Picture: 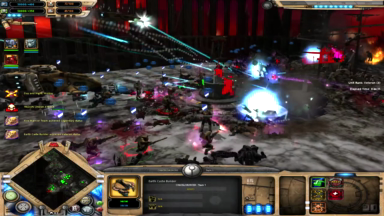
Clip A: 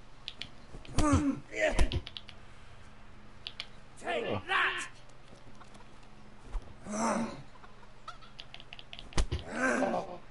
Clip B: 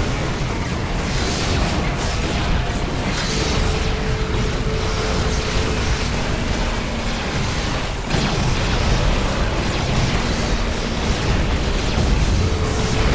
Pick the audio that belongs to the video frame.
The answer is B